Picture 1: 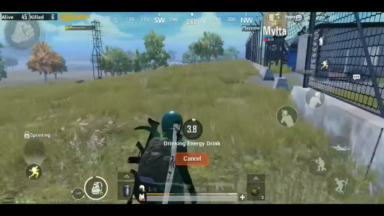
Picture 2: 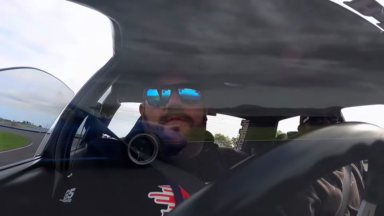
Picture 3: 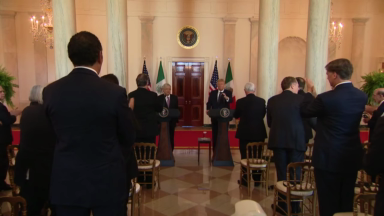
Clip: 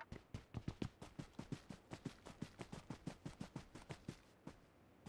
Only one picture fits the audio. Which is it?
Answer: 1